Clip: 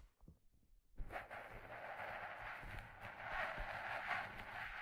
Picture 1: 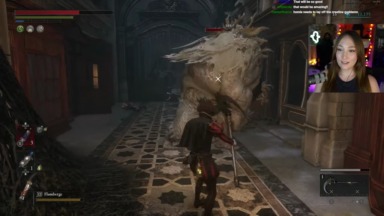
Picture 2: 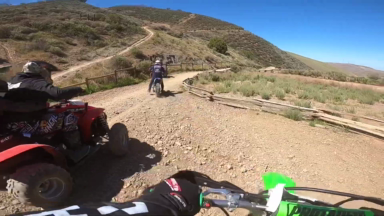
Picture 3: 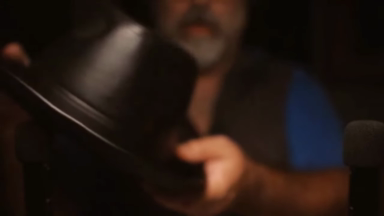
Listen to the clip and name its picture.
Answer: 3